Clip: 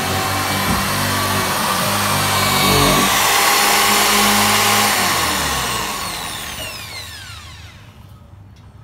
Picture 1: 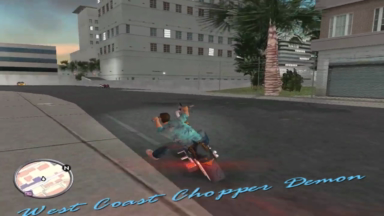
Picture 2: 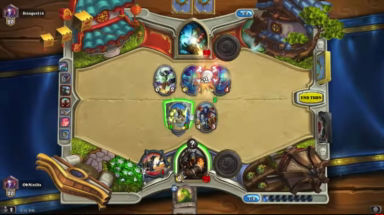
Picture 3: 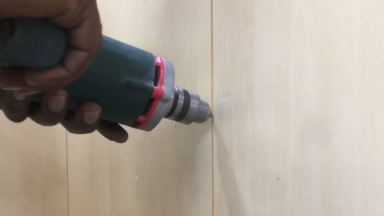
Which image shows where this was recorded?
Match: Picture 3